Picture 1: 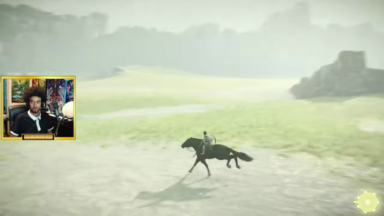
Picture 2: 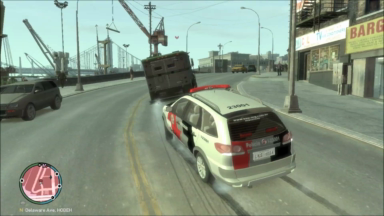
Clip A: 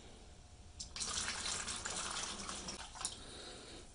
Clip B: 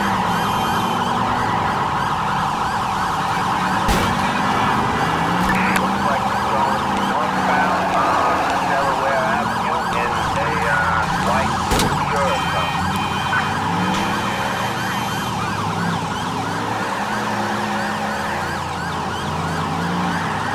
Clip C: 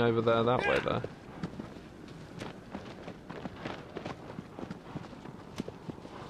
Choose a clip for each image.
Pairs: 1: C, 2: B